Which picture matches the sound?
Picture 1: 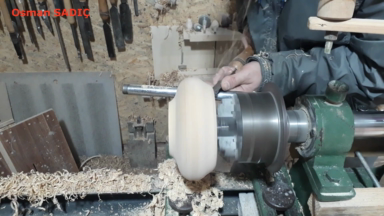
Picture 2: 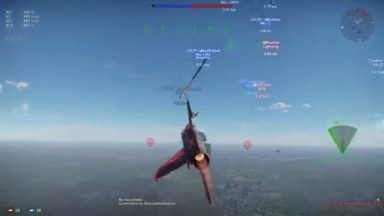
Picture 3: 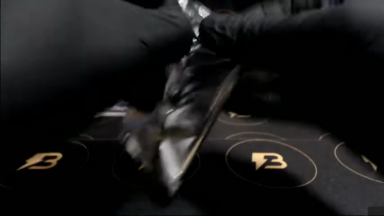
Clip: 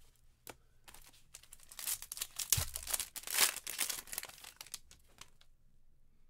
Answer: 3